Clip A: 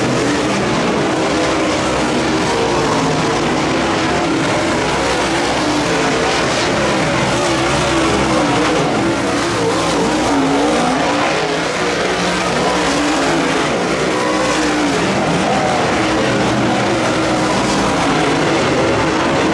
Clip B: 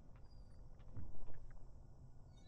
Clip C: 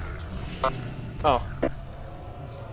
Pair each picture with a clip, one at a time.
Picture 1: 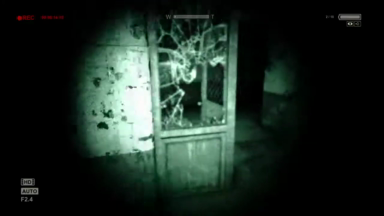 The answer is B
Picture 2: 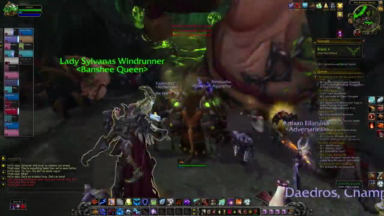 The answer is C